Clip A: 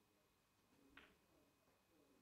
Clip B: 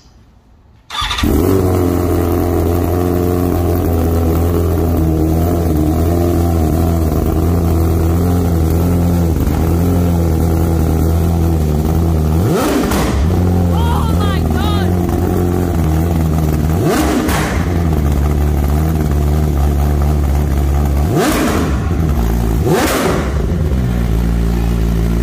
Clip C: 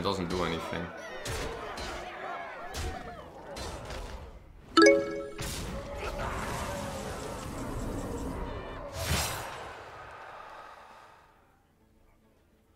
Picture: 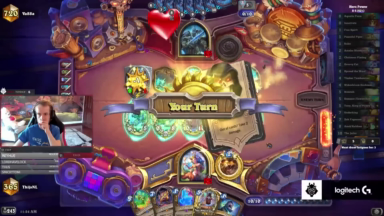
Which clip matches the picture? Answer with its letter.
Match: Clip C